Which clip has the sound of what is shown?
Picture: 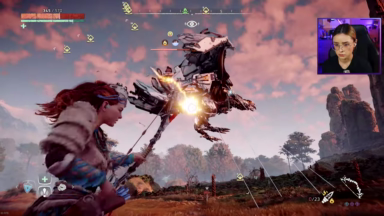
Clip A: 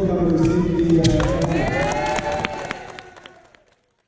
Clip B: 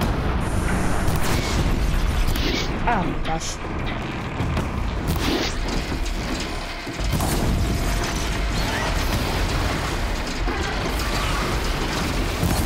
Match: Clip B